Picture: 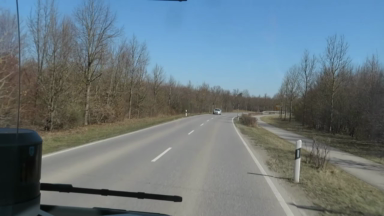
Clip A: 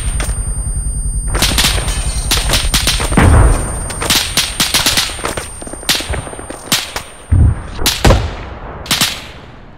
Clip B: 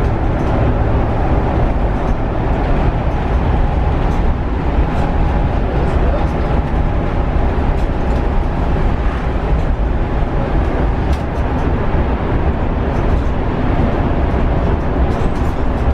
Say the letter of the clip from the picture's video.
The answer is B